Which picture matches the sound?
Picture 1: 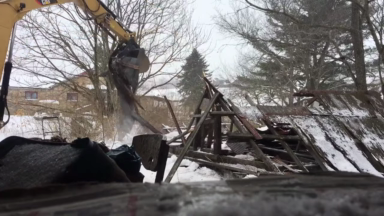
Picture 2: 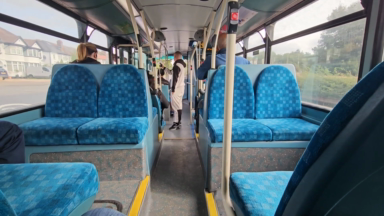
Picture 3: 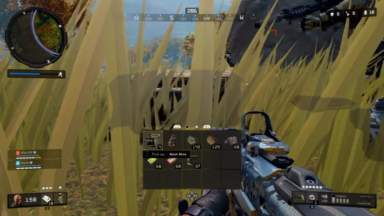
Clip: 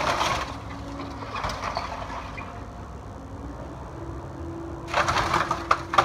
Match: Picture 1